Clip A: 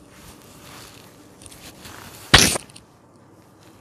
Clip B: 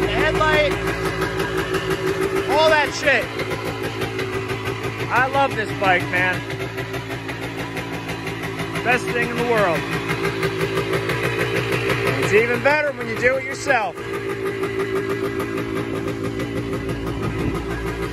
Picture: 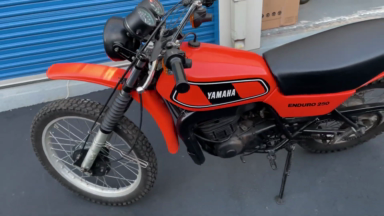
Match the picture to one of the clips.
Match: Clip B